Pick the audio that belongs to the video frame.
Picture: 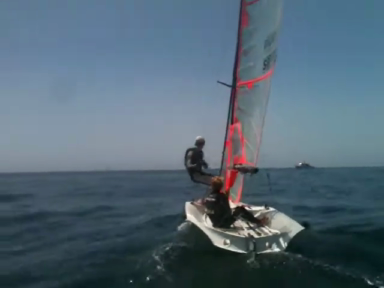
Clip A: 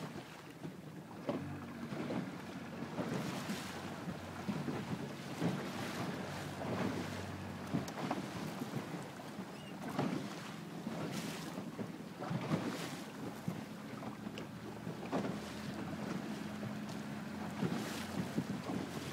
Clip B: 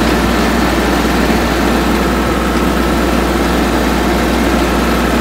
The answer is A